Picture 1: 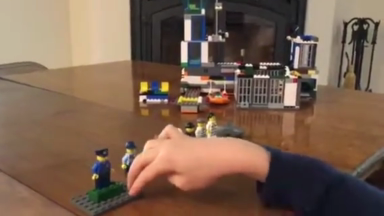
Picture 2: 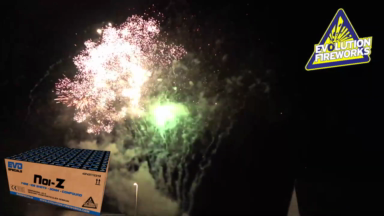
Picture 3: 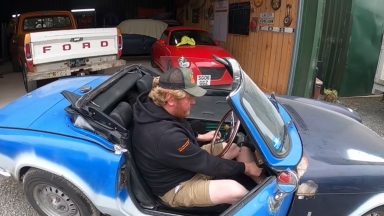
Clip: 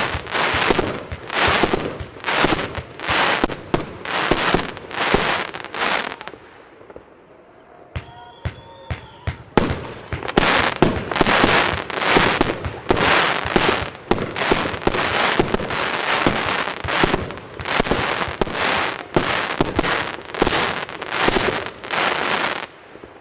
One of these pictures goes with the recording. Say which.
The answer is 2